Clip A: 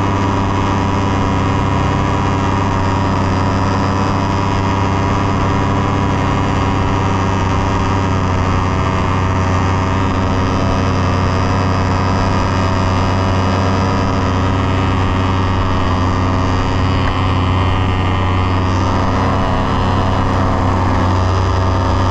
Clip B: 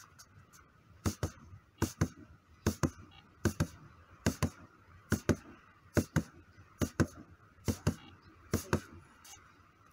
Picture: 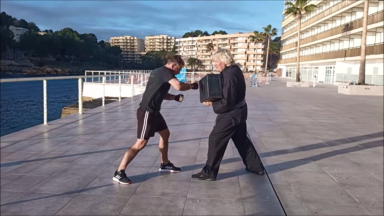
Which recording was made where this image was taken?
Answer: B